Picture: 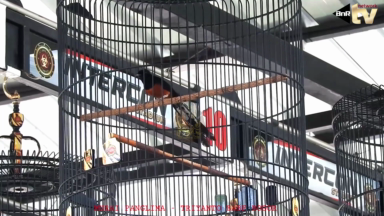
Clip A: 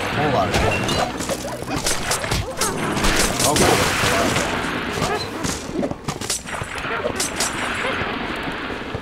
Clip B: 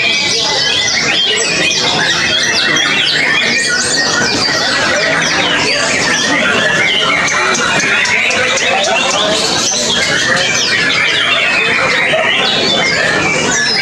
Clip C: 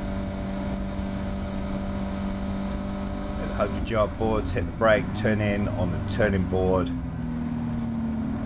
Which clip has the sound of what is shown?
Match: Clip B